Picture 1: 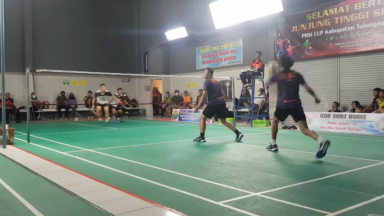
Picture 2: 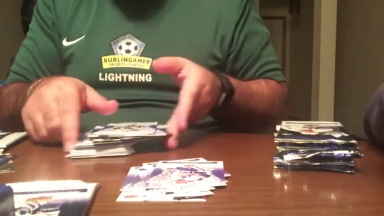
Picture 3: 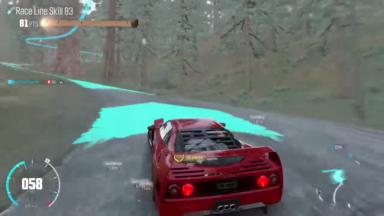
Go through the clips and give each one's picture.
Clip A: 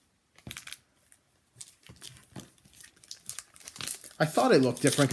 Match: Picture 2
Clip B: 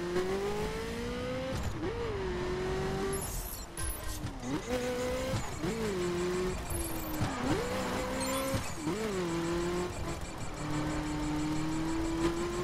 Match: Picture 3